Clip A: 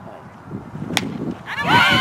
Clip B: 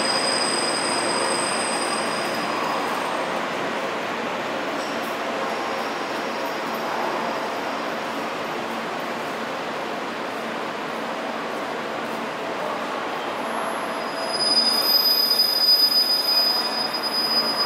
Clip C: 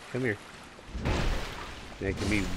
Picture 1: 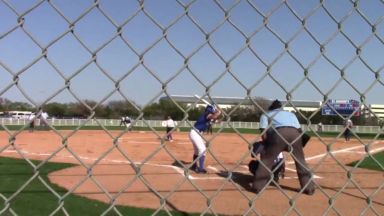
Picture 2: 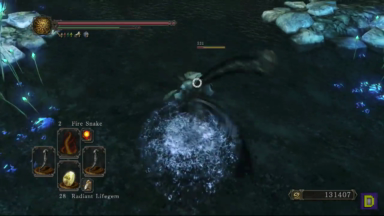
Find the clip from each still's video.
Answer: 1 A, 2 C